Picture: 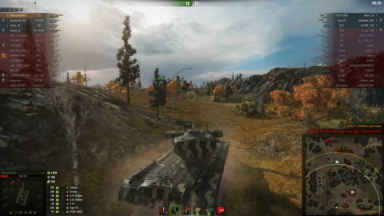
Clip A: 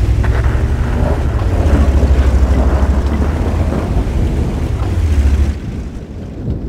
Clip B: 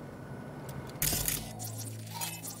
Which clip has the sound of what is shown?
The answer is A